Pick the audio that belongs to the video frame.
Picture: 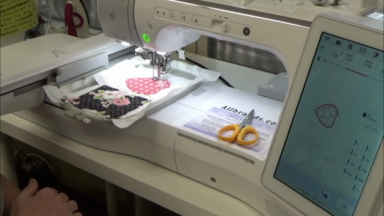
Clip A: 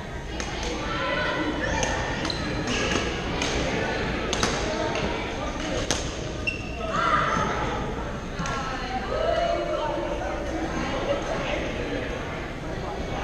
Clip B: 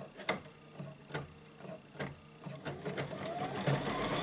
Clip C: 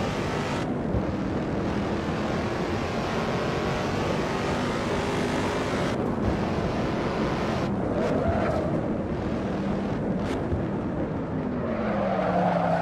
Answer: B